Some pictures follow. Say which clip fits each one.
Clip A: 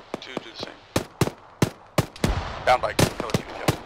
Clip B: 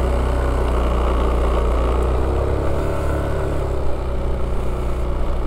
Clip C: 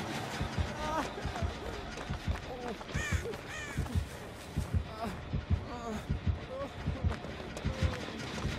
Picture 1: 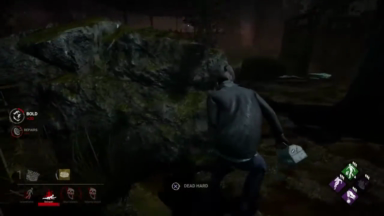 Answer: C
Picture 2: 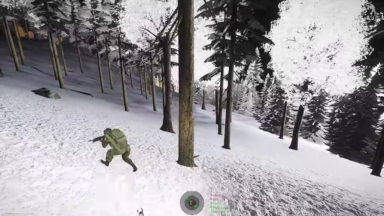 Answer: A